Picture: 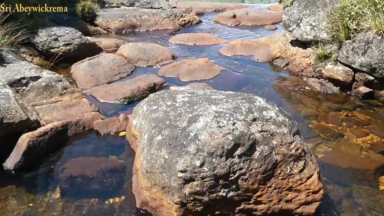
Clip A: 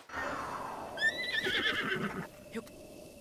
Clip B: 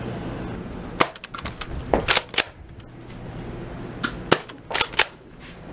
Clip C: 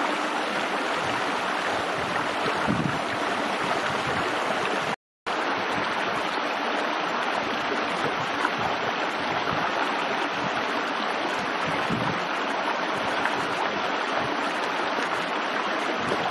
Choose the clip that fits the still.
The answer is C